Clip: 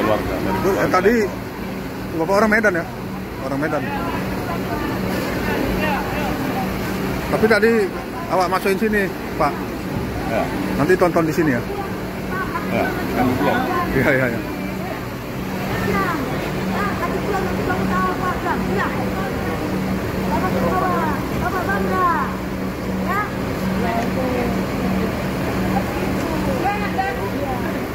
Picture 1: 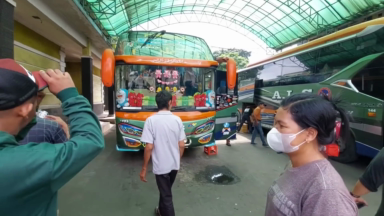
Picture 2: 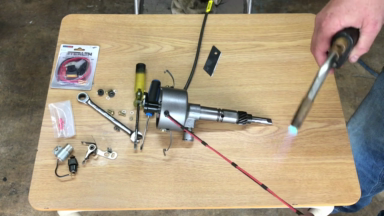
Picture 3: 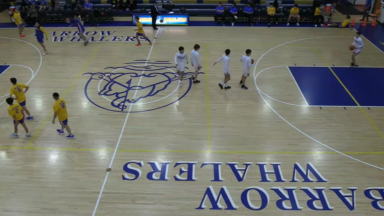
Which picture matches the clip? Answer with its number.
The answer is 1